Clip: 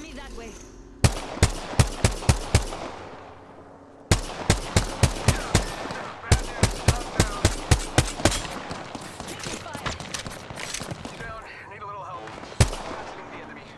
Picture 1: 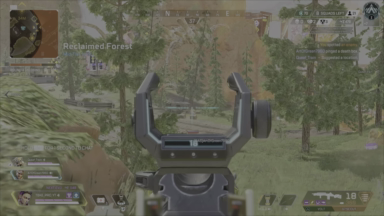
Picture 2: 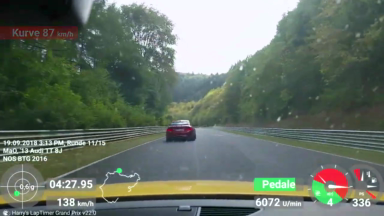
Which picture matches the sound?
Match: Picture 1